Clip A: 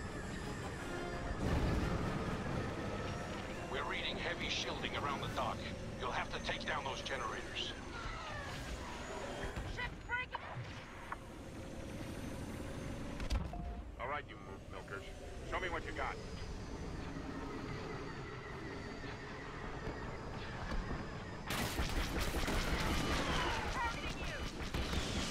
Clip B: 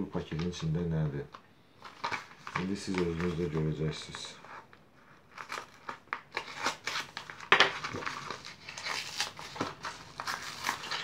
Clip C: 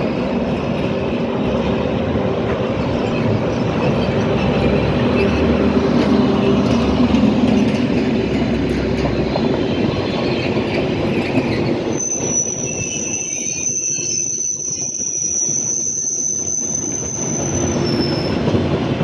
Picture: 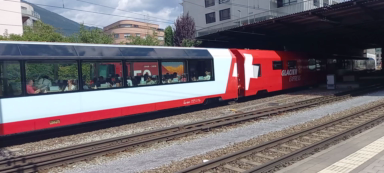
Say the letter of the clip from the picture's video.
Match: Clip C